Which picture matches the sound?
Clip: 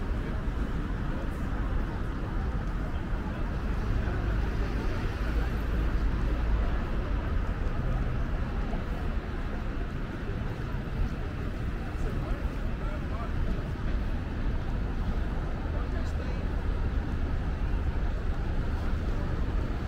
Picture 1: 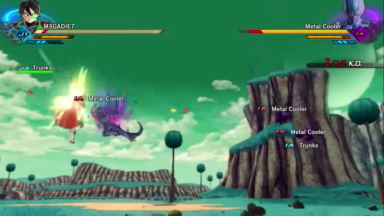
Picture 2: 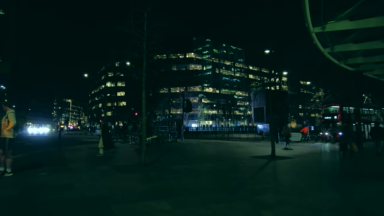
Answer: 2